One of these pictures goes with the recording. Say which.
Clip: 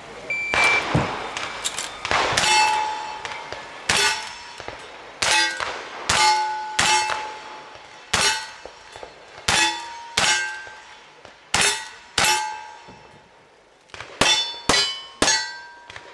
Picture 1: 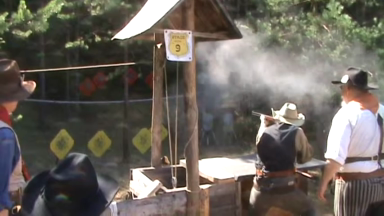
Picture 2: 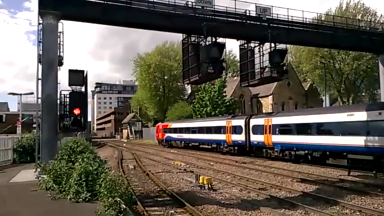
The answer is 1